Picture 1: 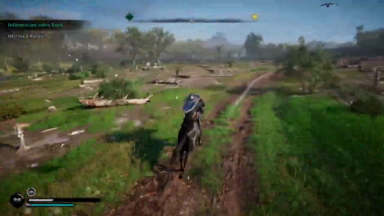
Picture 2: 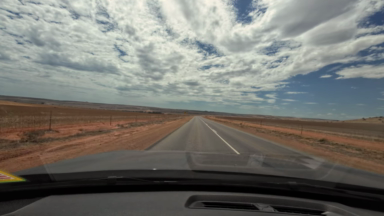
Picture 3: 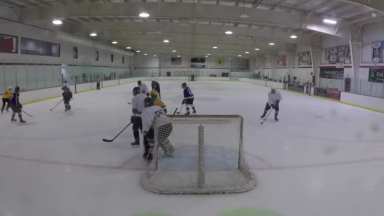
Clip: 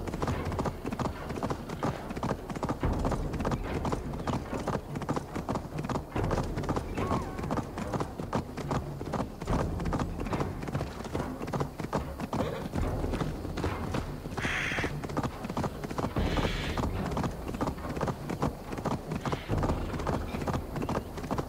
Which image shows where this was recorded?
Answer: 1